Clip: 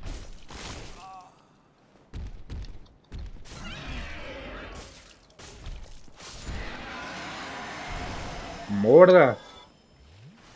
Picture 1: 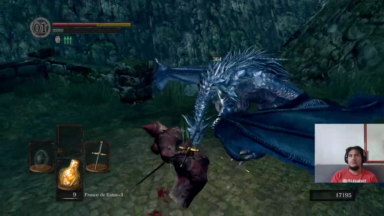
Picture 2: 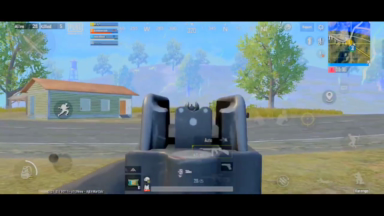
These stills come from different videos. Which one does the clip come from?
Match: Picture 1